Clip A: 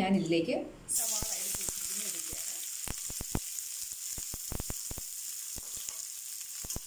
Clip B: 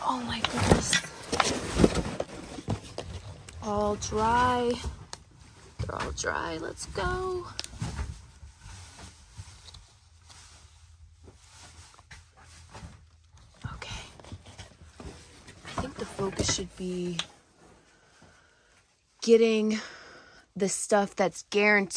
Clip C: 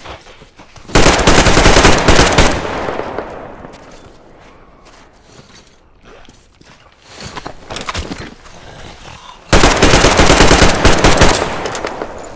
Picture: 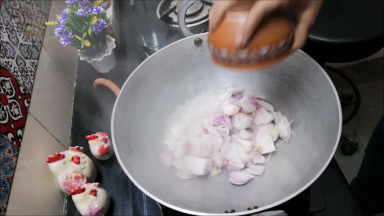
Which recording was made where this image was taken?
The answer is A